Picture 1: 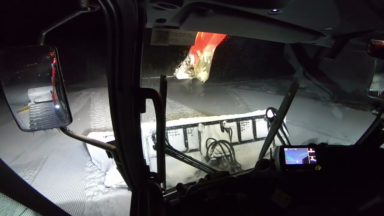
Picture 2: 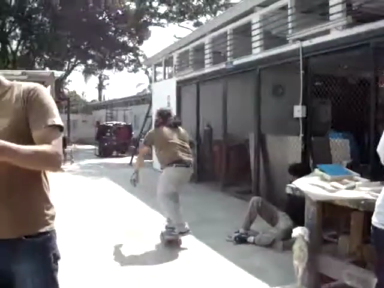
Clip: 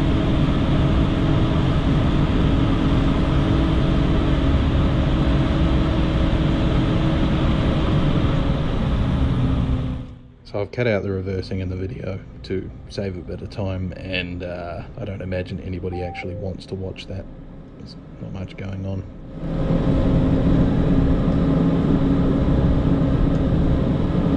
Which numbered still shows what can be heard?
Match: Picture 1